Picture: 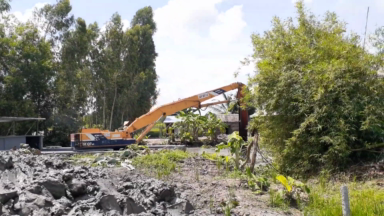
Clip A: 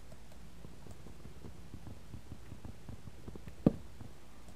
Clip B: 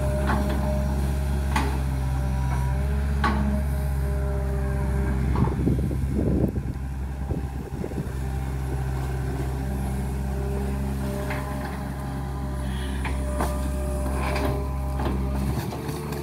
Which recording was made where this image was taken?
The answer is B